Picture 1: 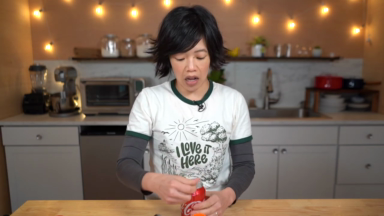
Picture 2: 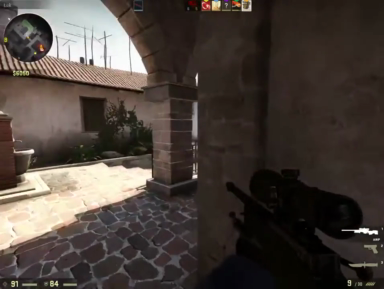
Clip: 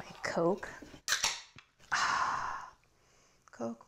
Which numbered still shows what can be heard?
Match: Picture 1